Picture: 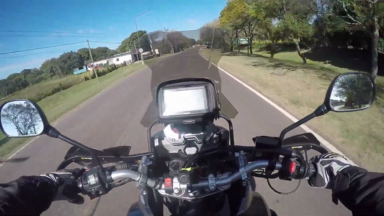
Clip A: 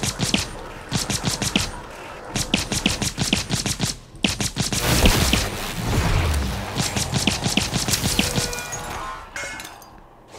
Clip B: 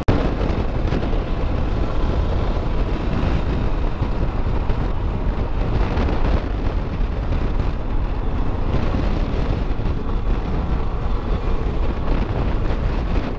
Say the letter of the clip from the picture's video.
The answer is B